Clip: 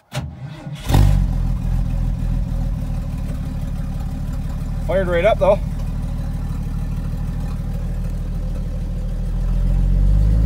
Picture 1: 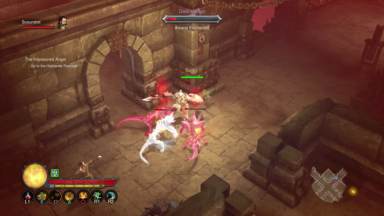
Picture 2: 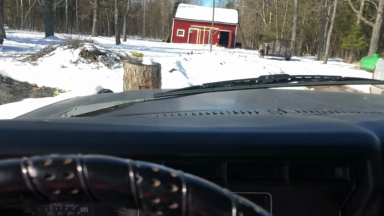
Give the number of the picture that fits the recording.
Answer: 2